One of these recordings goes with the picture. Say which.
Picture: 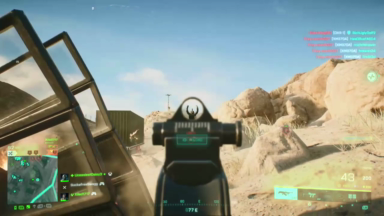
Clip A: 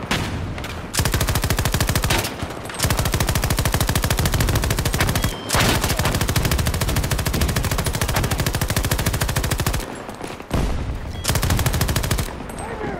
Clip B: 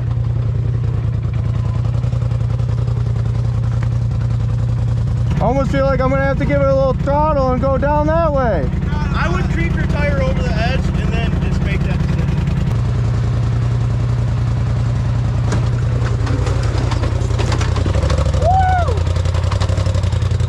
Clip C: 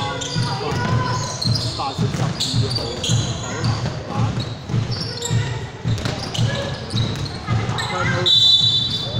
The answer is A